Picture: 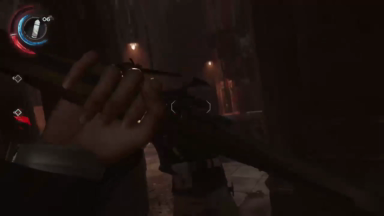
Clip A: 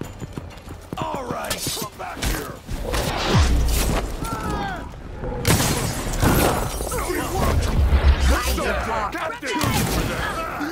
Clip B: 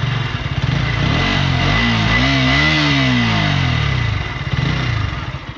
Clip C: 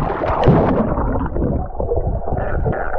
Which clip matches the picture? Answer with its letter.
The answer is A